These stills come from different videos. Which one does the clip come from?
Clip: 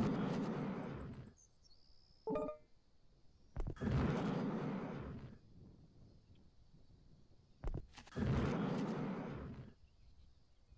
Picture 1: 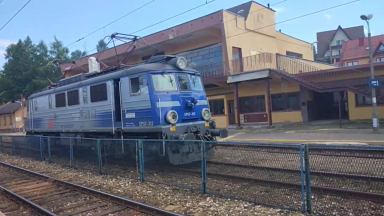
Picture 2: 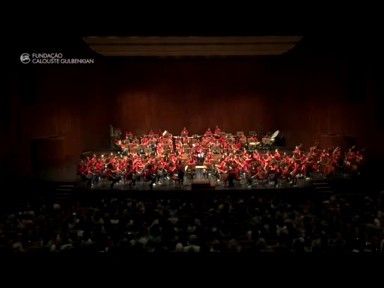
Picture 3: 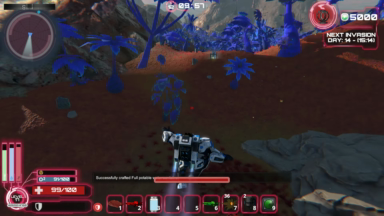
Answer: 3